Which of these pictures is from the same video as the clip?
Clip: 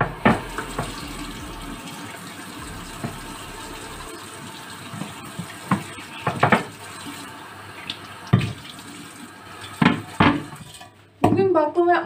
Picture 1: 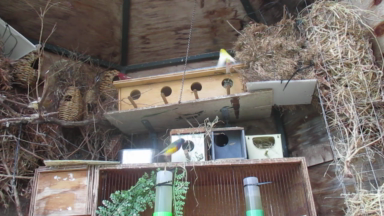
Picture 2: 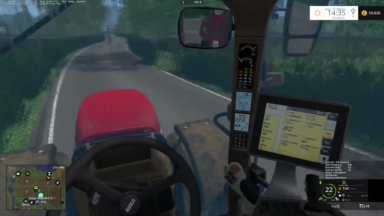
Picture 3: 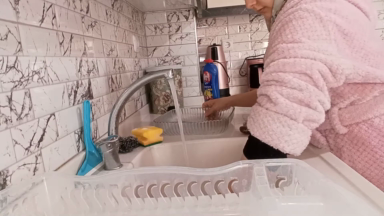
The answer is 3